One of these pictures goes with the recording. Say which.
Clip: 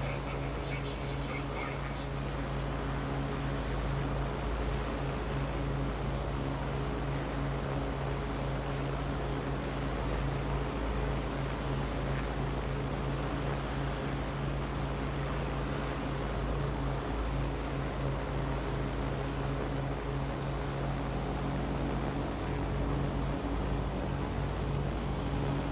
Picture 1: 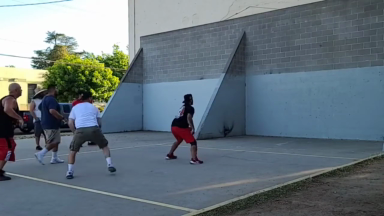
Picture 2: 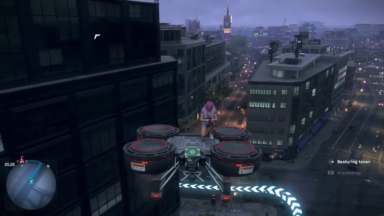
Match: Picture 2